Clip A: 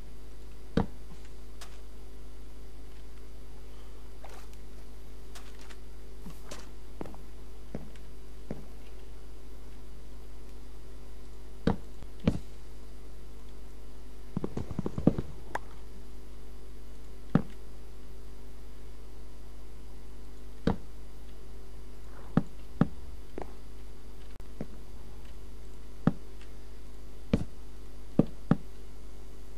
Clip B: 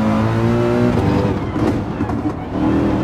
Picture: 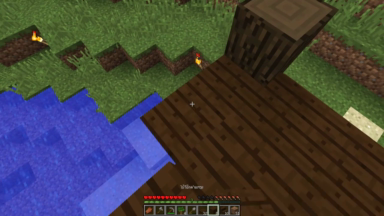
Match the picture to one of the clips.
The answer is A